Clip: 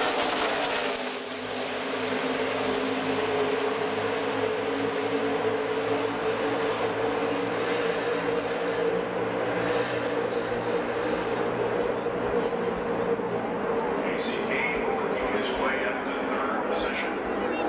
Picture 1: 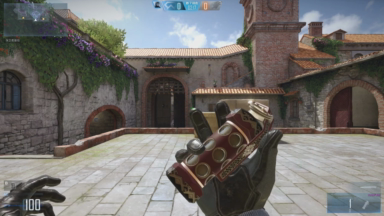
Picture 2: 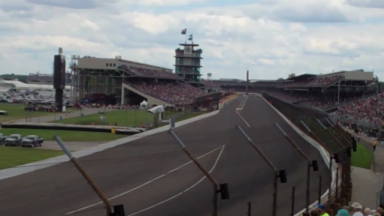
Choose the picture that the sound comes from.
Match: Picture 2